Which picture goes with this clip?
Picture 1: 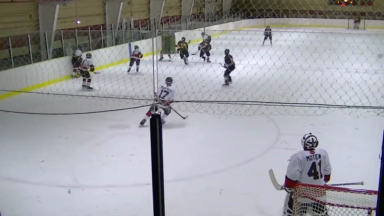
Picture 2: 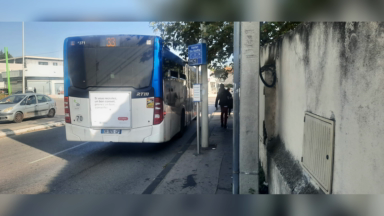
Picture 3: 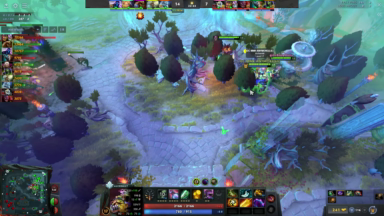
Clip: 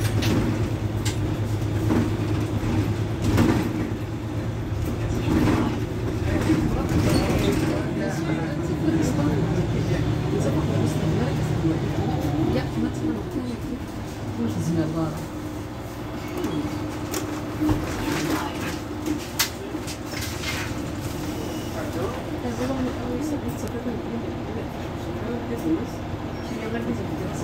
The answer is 2